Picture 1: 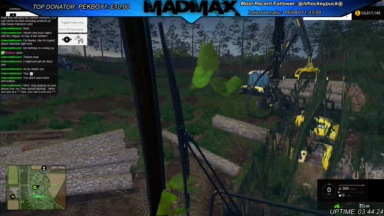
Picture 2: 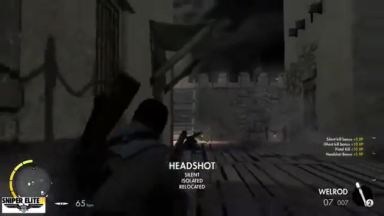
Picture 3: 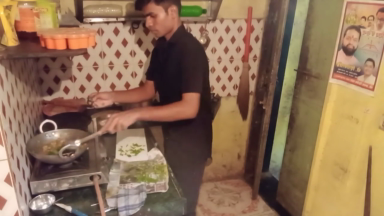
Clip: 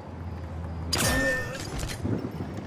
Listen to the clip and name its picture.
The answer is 2